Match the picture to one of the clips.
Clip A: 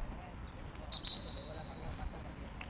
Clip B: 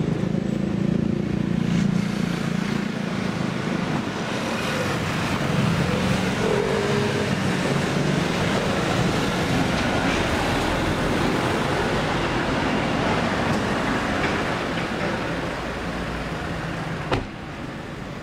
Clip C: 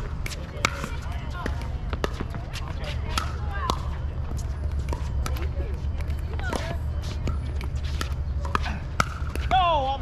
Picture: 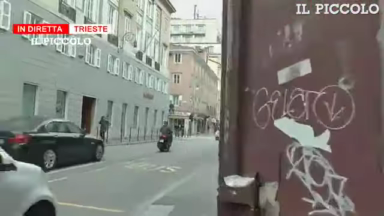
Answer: B